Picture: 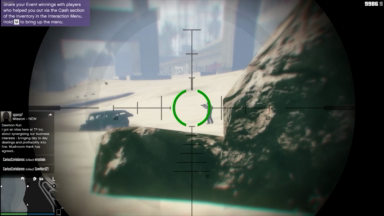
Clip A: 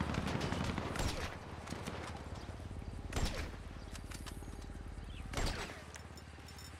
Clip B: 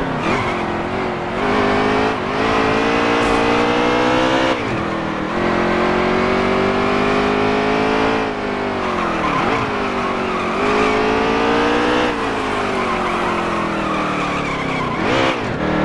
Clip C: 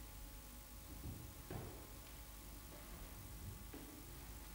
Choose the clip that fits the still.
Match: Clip A